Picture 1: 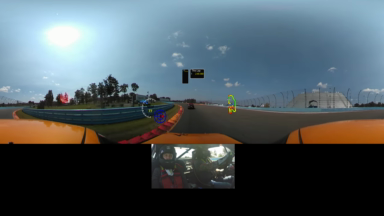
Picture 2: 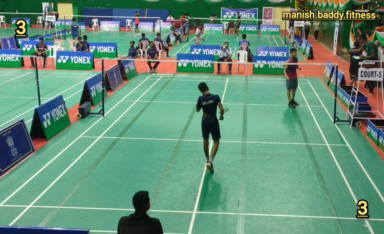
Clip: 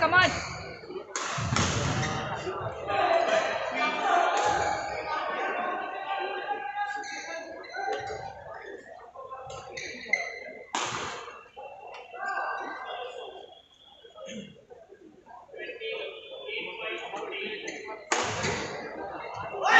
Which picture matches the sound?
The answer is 2